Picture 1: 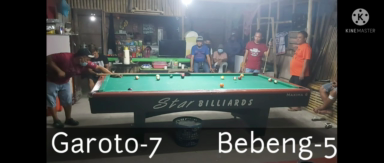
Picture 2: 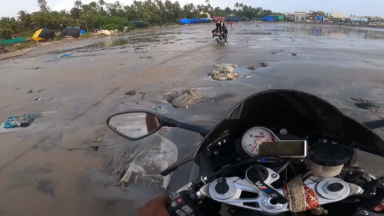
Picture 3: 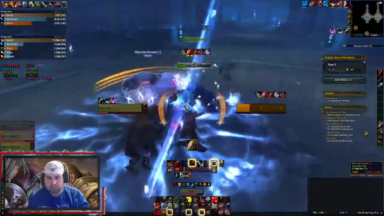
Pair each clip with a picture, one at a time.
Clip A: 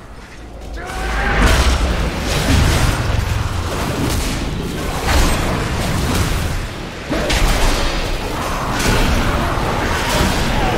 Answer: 3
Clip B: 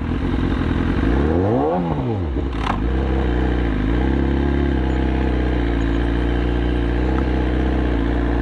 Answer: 2